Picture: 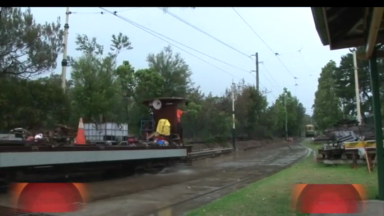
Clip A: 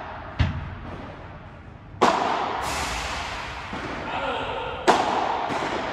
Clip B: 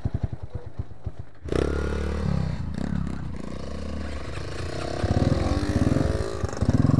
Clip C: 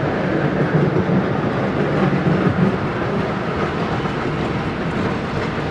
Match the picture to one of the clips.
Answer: C